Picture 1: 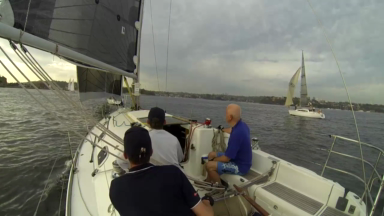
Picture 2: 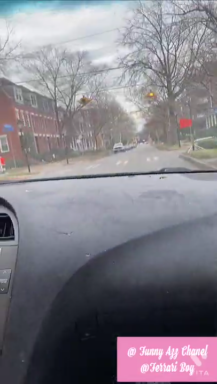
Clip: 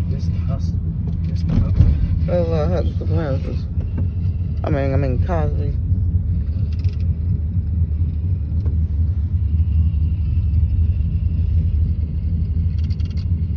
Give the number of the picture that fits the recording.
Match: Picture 2